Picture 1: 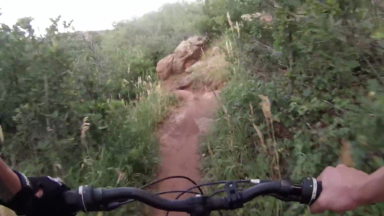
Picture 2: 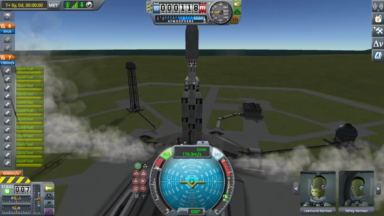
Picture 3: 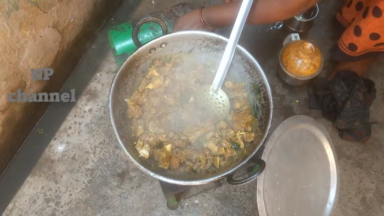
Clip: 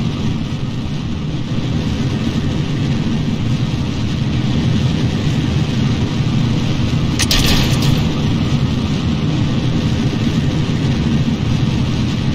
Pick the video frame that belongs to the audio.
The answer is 2